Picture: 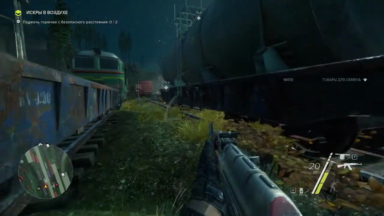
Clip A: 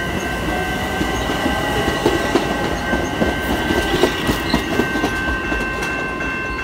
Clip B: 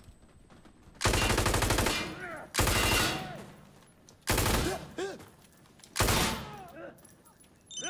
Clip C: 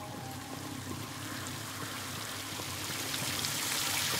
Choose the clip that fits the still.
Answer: C